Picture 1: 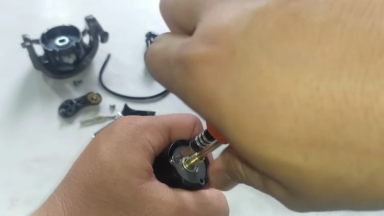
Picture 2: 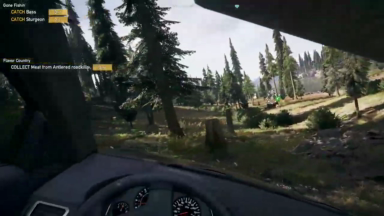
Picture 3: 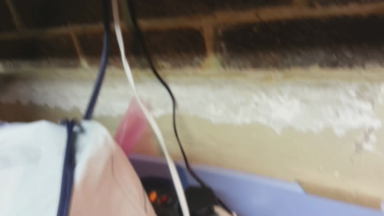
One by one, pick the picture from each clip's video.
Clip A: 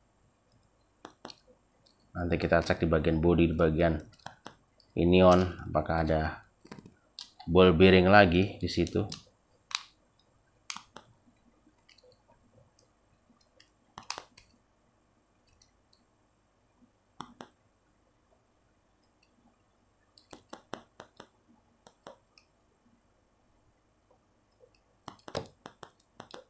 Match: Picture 1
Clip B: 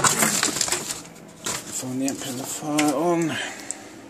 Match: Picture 3